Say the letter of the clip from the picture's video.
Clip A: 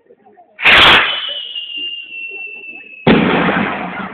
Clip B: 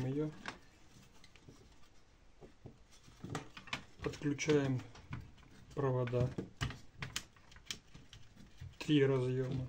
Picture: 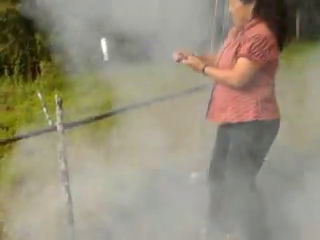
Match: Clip A